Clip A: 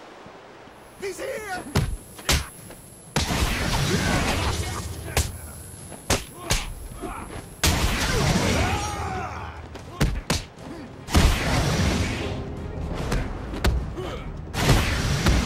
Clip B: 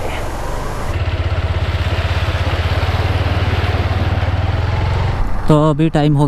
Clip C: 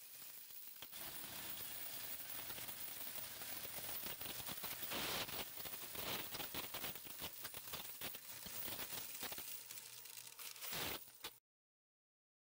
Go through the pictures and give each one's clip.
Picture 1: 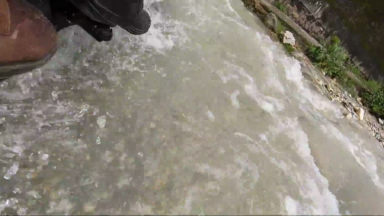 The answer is B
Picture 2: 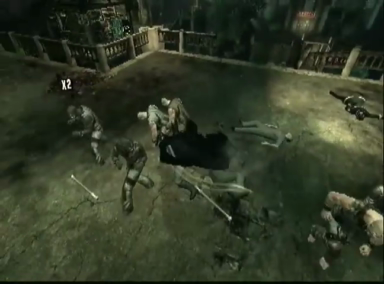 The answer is A